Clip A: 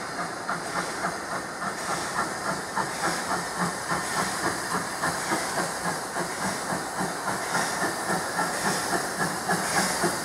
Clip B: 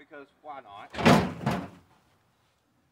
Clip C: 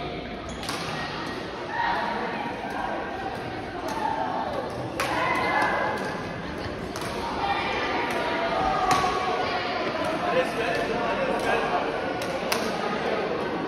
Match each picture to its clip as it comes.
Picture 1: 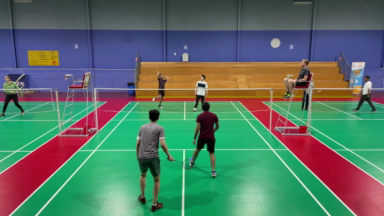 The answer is C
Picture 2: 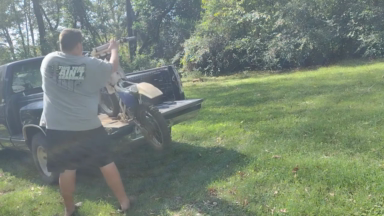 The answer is B